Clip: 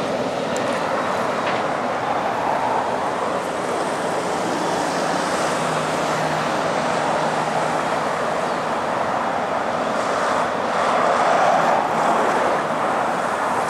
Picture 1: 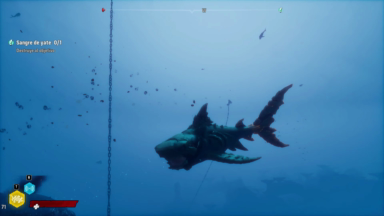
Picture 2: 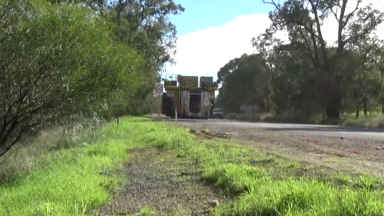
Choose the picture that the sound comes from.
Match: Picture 2